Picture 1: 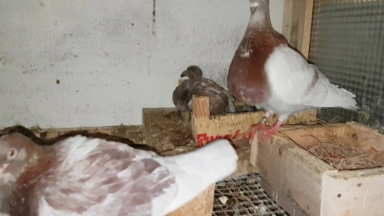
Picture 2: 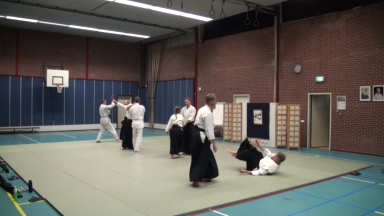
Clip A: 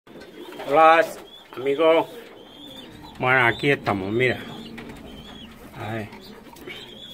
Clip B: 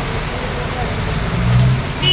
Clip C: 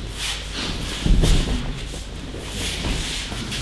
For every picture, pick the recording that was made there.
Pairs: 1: A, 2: C